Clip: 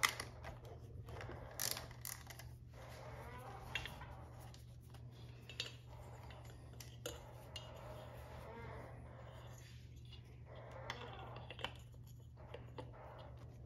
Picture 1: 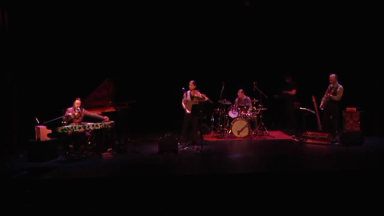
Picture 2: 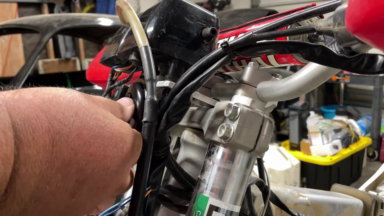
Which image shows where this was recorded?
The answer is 2